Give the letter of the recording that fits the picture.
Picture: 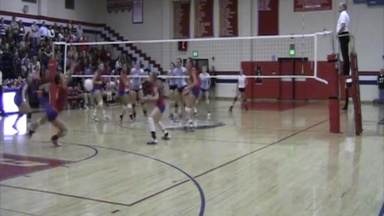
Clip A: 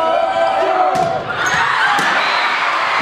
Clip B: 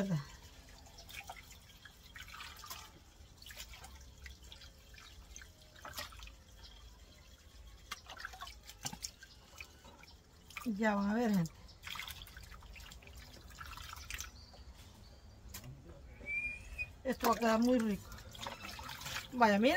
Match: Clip A